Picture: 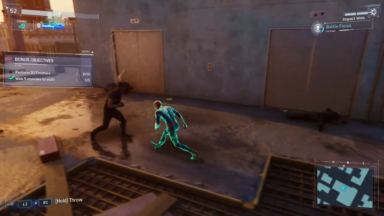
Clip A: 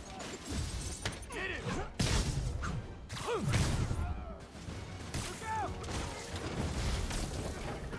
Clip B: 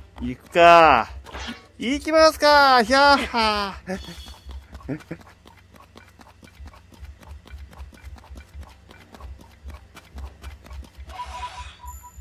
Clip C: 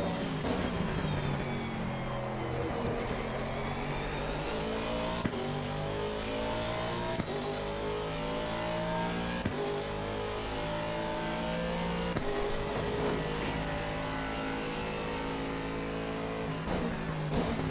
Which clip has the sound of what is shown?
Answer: A